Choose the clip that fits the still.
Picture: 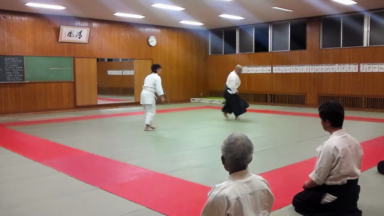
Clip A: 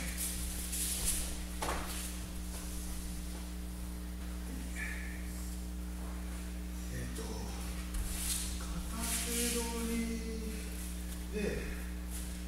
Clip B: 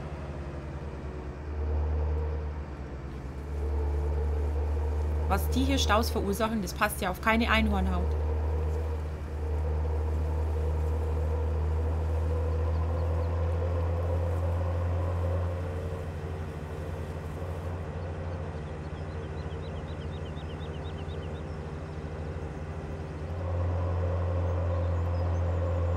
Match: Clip A